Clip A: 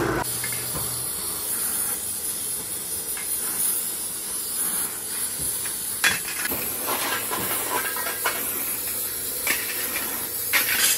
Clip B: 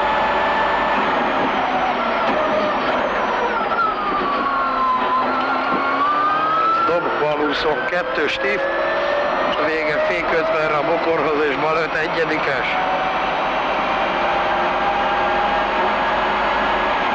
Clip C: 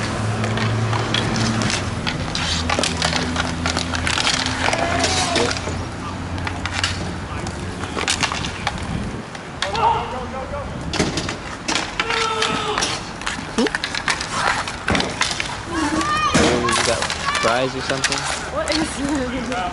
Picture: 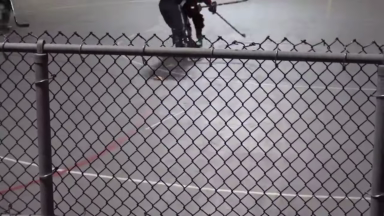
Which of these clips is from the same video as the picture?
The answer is C